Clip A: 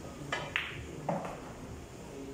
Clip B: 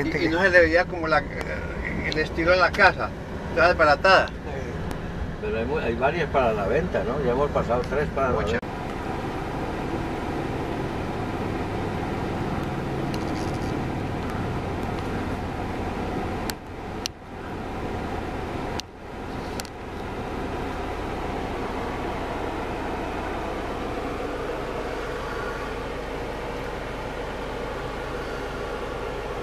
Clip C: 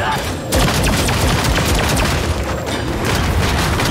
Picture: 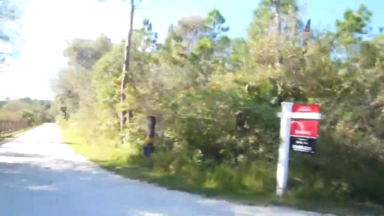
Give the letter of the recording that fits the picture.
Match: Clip B